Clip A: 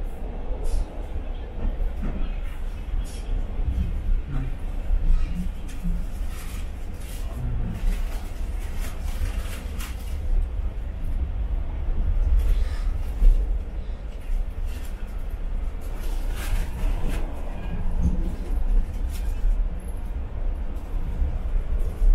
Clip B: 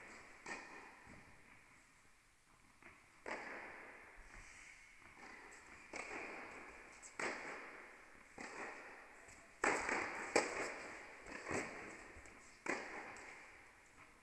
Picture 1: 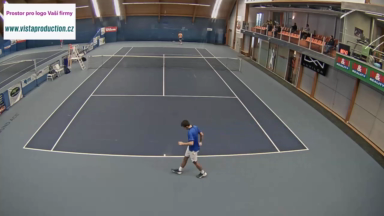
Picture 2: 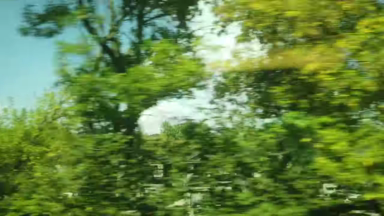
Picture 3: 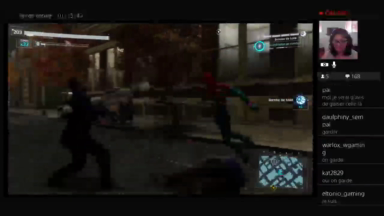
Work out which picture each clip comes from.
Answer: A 2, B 1